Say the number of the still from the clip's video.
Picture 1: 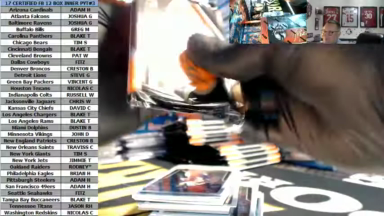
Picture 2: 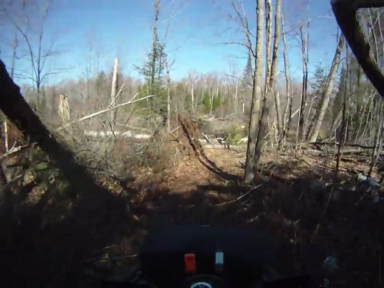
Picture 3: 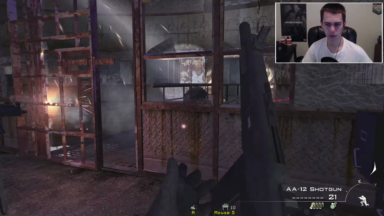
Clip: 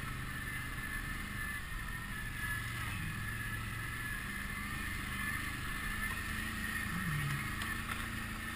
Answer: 2